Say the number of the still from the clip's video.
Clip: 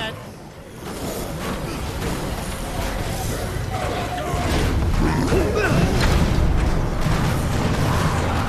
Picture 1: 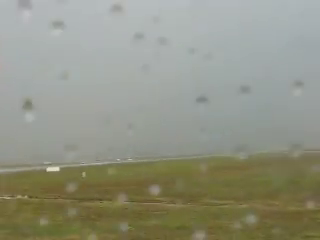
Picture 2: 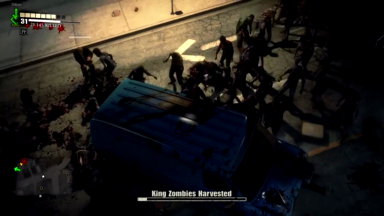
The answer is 2